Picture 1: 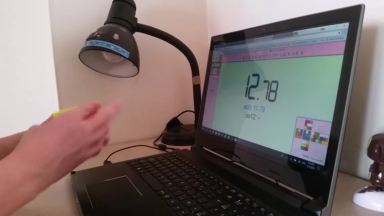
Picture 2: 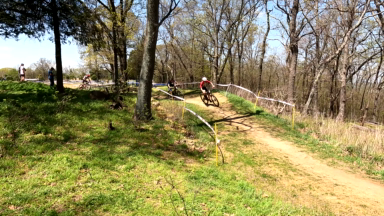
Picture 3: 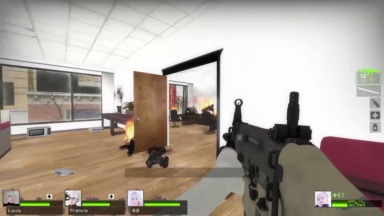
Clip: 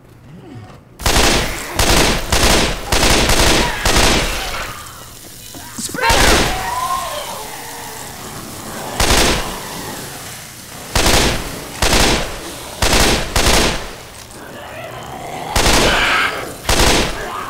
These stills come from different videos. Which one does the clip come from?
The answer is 3